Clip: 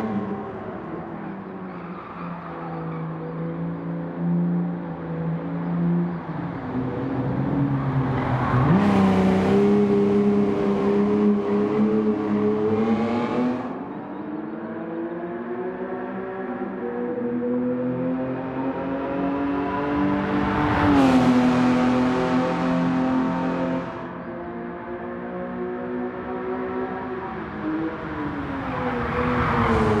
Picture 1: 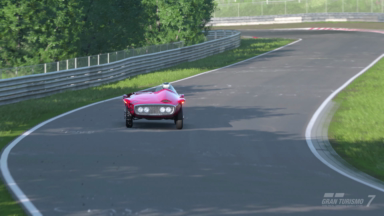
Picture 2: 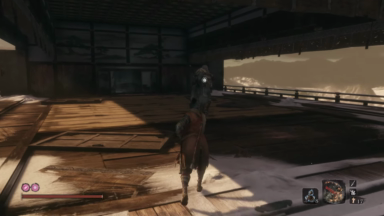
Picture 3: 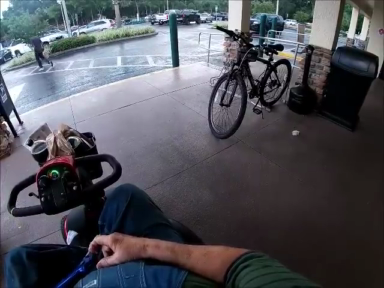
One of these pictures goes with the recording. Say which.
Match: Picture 1